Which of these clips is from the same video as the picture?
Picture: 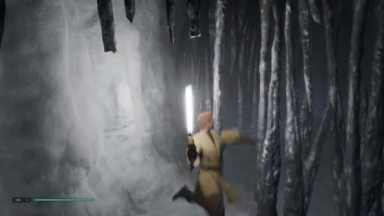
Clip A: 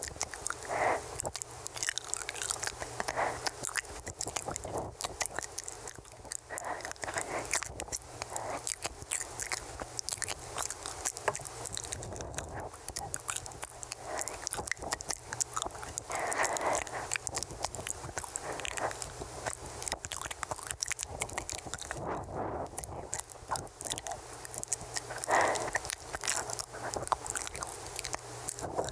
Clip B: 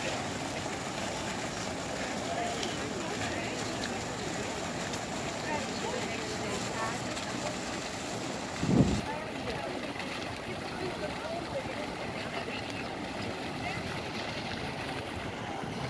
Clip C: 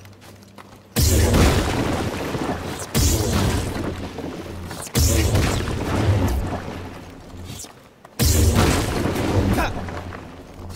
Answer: C